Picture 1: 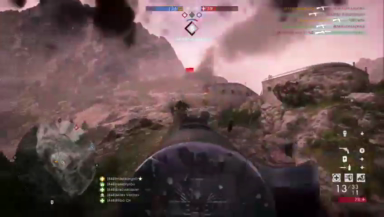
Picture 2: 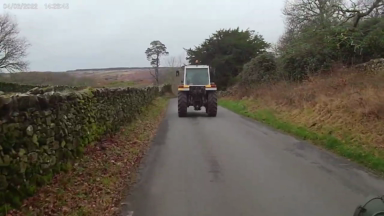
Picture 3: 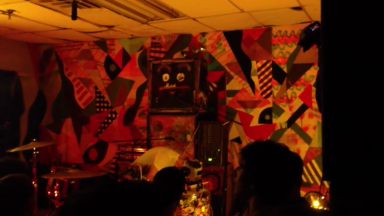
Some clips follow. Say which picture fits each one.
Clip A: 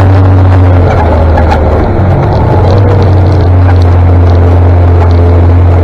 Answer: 2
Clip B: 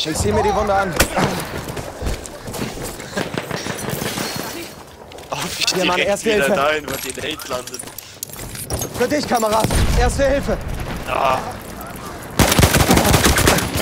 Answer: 1